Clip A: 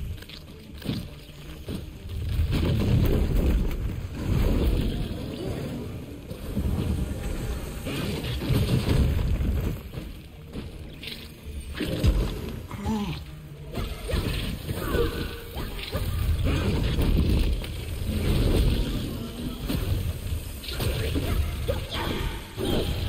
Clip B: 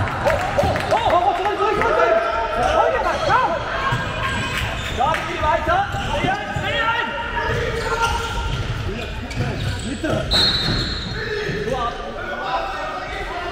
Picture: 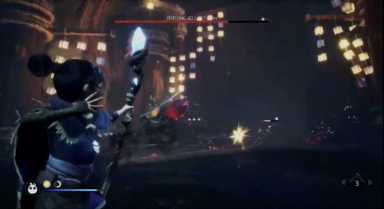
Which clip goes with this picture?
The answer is A